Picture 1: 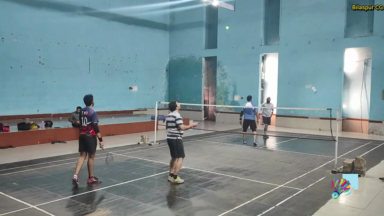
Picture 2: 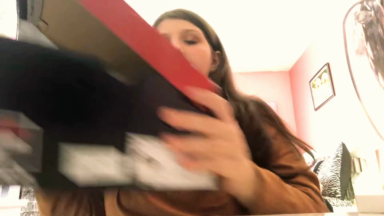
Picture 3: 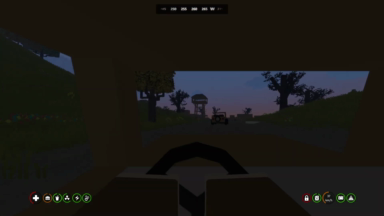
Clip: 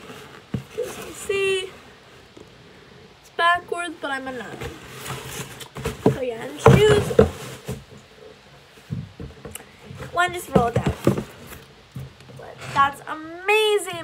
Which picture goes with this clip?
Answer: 2